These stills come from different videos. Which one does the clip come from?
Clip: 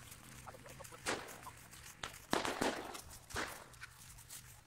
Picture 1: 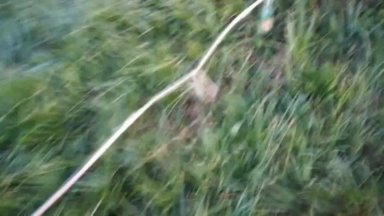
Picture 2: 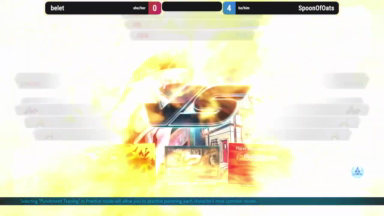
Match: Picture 1